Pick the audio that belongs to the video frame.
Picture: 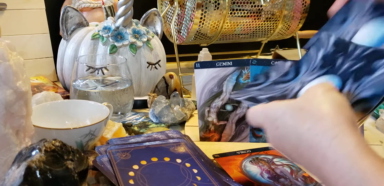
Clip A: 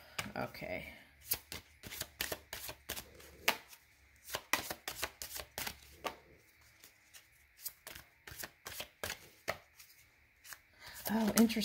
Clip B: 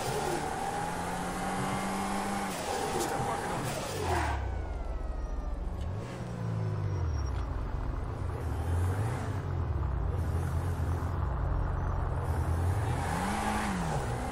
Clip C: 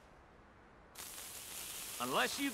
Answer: A